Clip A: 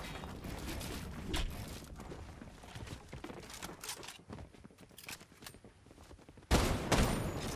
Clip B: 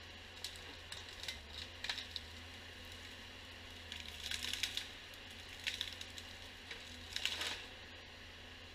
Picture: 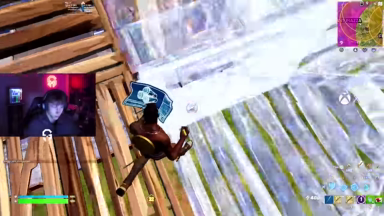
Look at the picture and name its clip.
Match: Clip A